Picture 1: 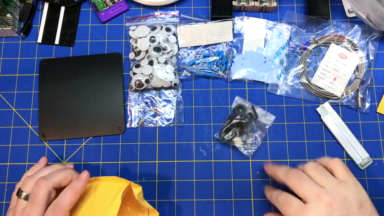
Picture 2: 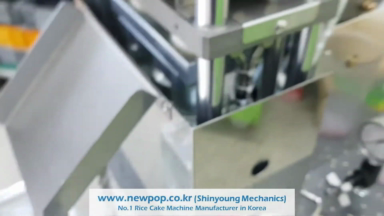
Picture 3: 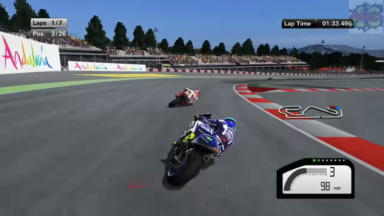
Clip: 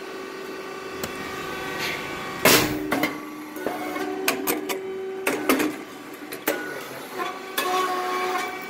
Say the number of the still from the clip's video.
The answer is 2